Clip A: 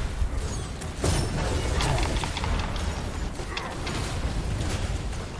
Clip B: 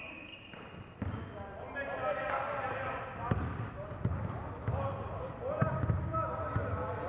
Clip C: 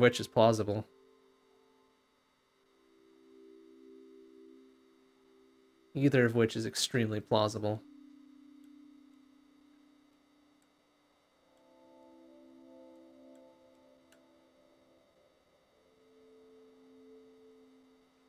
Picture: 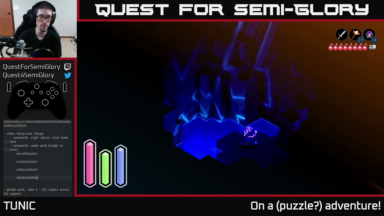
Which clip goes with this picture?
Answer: C